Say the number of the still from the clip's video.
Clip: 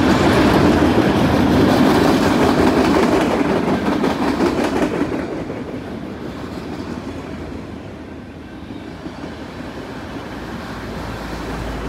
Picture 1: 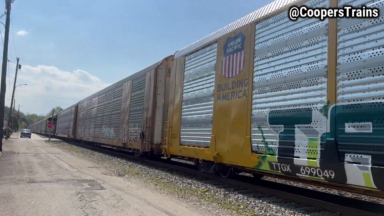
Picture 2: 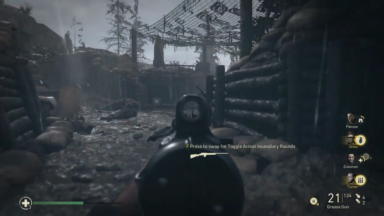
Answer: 1